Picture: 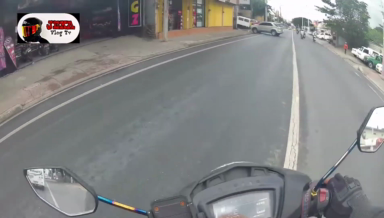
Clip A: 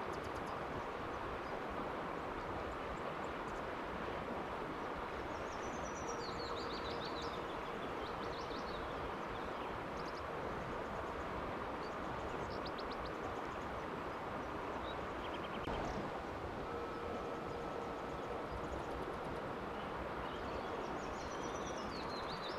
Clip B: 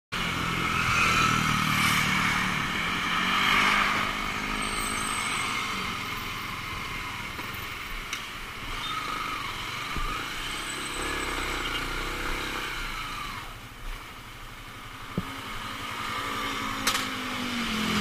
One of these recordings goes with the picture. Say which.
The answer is B